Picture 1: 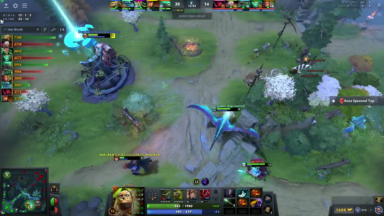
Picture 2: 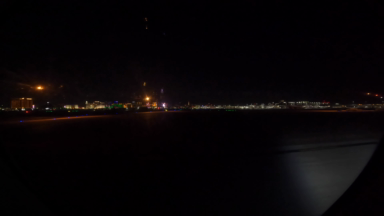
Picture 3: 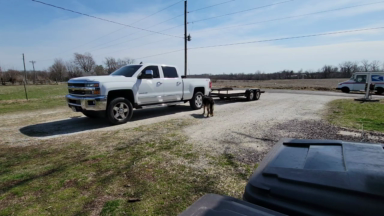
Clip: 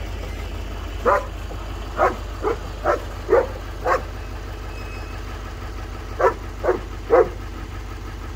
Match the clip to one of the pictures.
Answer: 3